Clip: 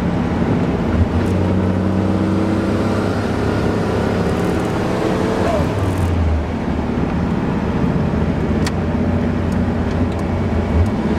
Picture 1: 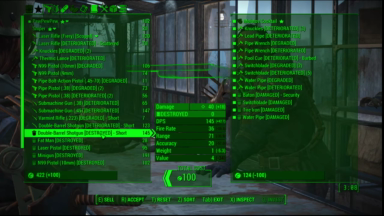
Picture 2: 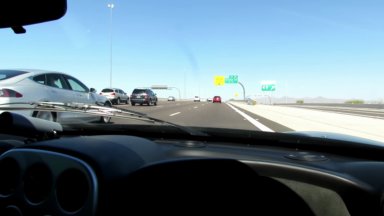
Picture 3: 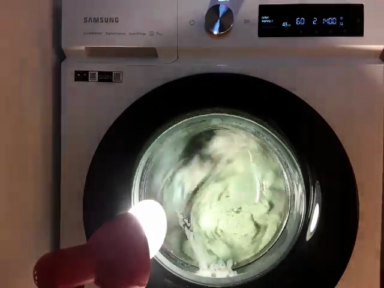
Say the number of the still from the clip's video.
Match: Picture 2